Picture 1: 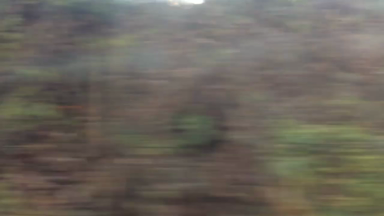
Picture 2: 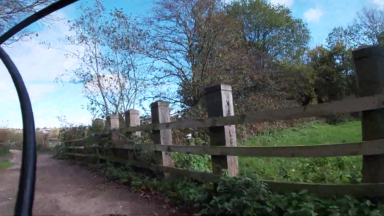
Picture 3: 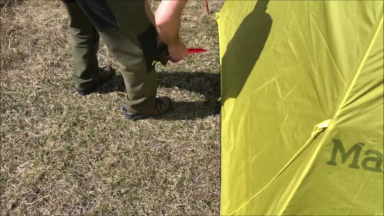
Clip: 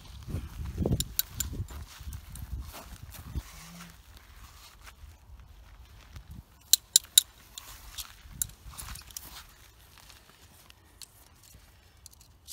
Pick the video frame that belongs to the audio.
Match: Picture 3